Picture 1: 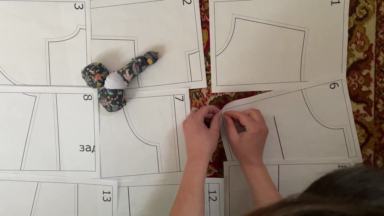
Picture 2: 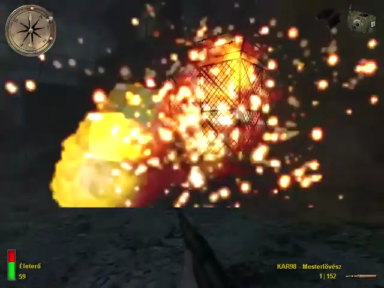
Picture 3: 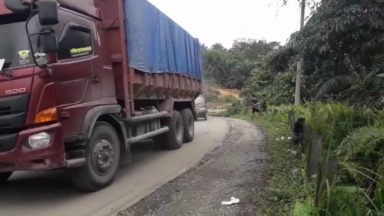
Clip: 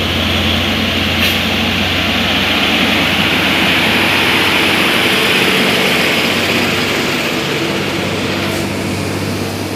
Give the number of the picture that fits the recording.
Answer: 3